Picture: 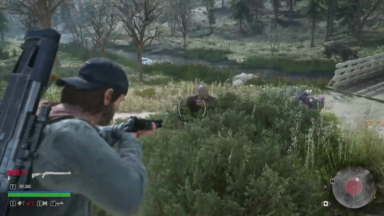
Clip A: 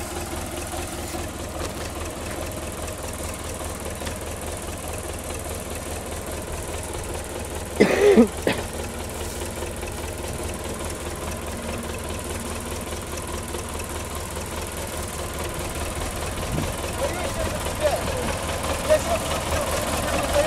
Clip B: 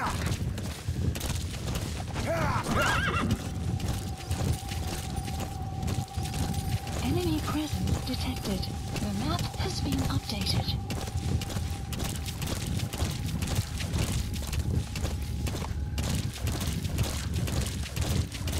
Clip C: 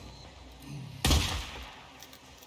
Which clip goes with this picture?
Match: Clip C